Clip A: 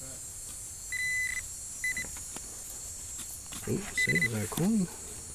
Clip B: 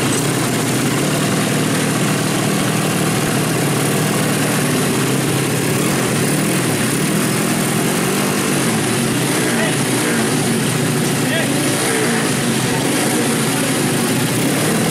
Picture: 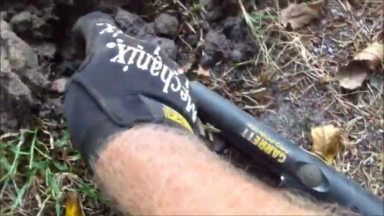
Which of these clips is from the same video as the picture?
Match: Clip A